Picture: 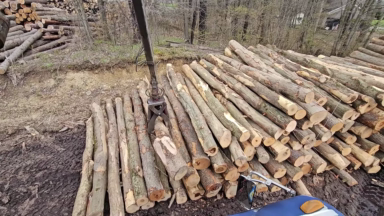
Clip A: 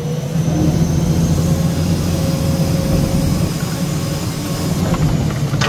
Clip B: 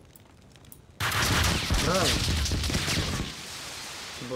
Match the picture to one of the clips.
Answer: A